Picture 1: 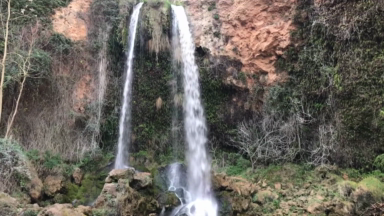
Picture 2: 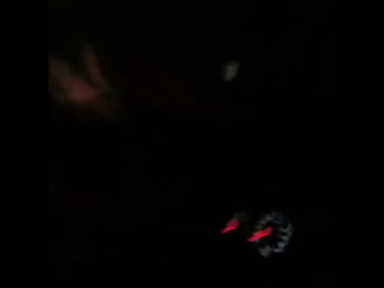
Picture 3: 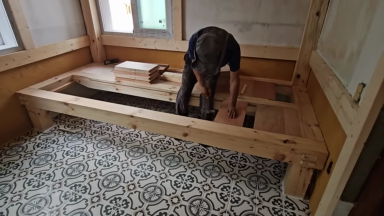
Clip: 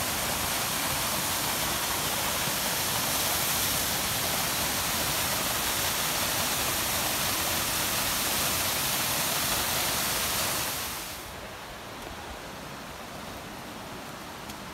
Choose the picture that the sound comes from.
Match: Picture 1